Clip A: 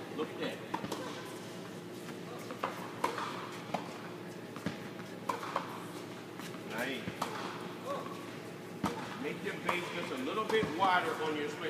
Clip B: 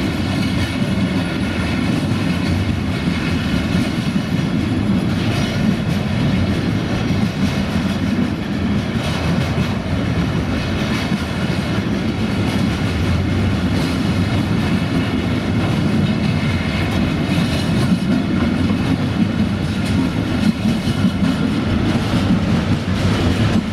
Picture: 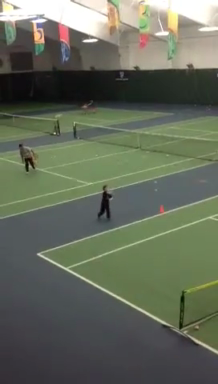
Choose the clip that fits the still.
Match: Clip A